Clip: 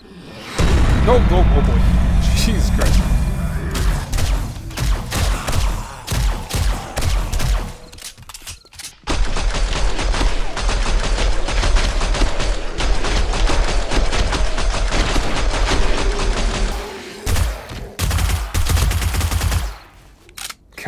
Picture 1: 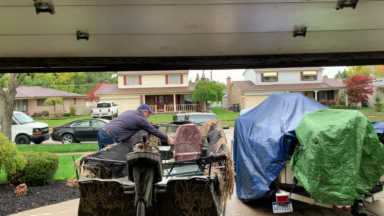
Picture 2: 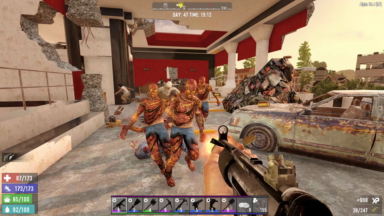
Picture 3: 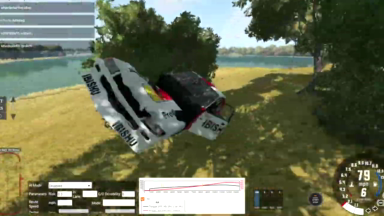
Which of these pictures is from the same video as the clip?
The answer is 2